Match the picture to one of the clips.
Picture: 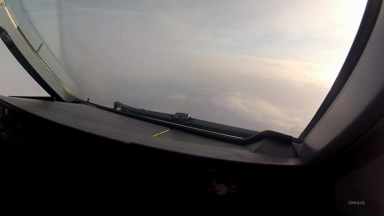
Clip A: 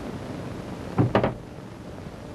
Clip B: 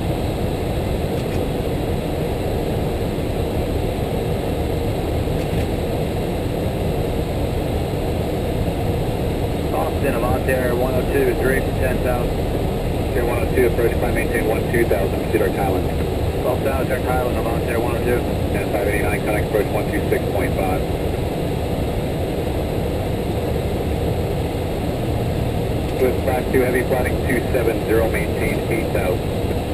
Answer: B